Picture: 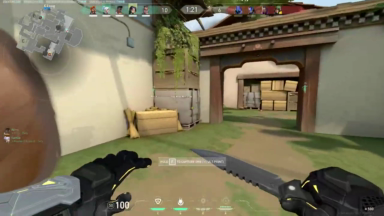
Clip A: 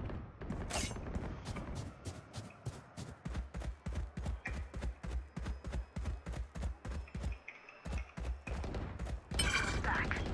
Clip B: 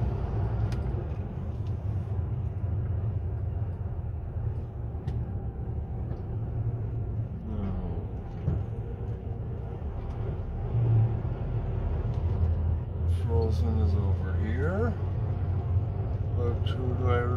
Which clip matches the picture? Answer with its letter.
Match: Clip A